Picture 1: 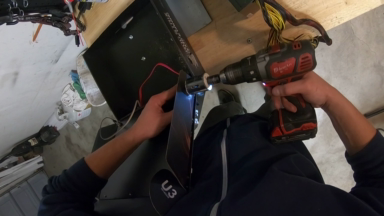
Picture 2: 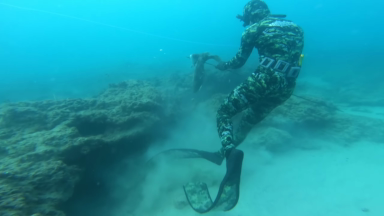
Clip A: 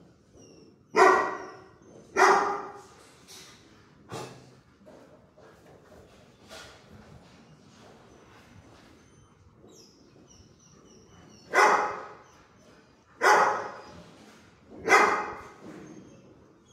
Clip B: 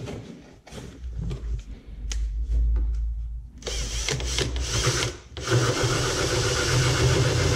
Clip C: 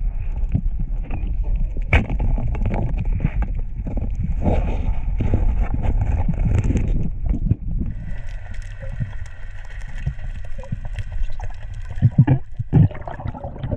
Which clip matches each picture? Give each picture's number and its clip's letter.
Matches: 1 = B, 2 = C